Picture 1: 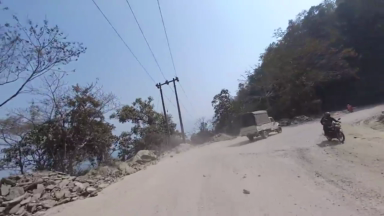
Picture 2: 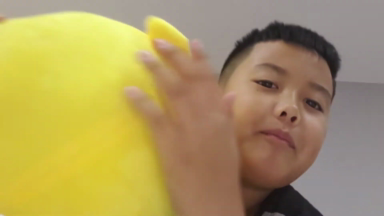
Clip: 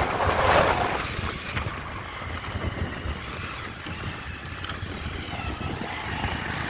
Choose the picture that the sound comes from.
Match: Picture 1